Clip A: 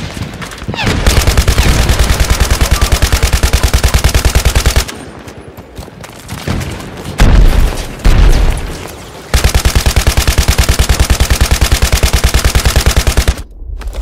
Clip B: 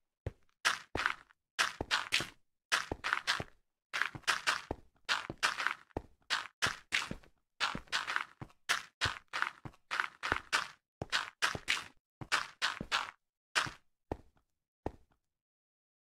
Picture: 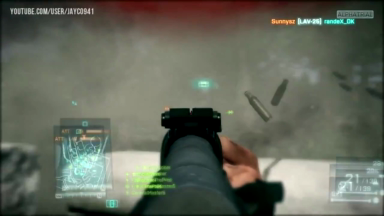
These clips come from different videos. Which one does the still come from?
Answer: A